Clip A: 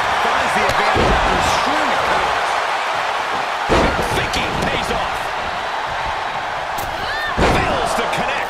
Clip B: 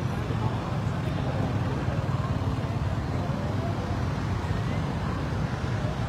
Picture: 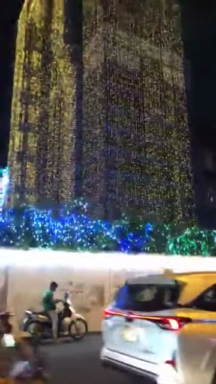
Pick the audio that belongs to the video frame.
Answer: B